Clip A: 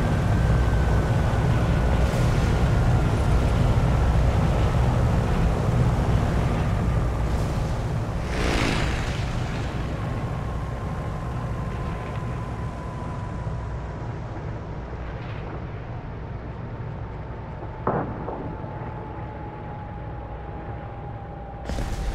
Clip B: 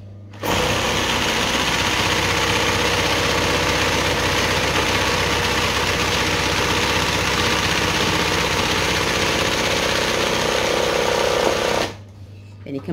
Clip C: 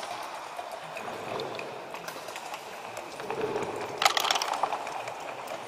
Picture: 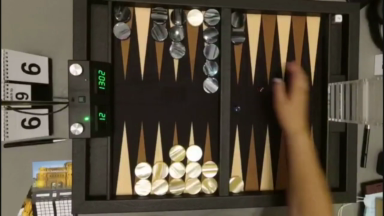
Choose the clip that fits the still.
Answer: C